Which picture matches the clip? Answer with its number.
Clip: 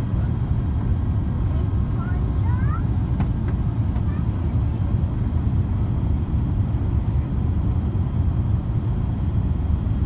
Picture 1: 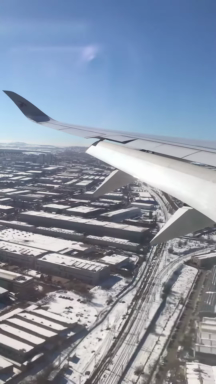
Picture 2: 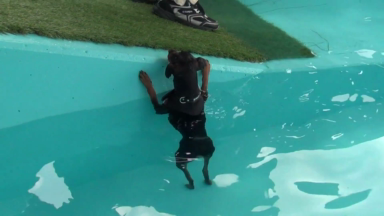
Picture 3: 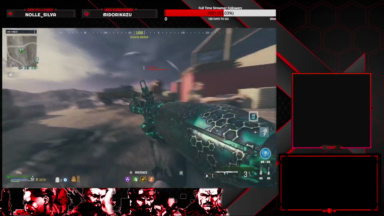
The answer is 1